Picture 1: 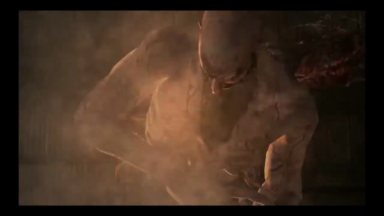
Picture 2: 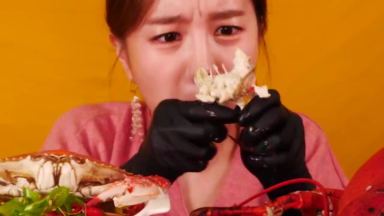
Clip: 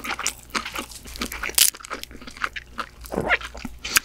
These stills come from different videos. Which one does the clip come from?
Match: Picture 2